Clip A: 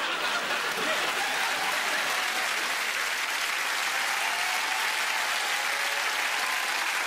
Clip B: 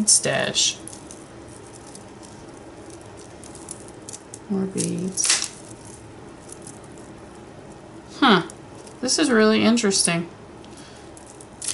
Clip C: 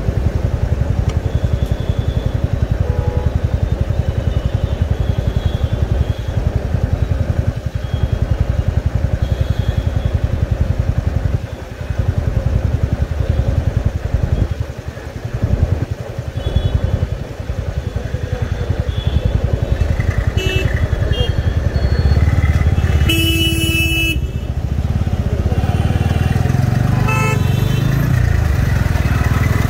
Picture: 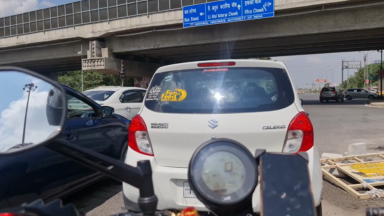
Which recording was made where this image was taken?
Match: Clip C